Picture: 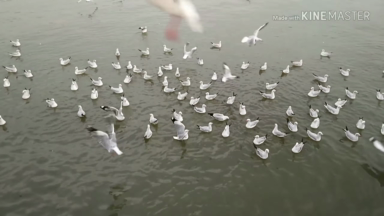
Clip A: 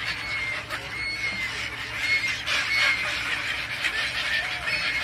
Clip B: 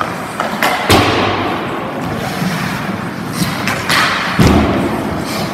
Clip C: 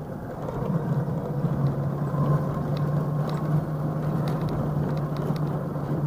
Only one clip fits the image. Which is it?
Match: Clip A